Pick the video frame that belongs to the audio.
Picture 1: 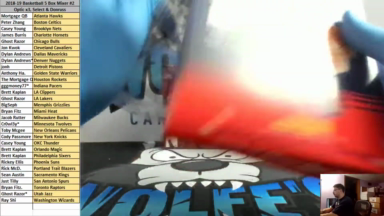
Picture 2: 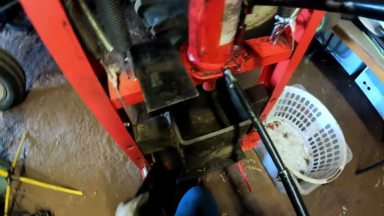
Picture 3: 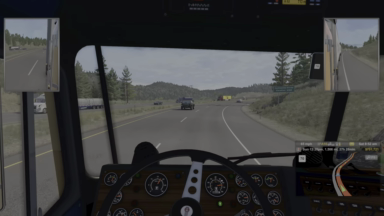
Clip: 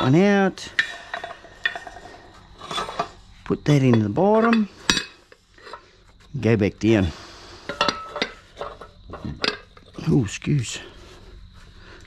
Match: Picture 2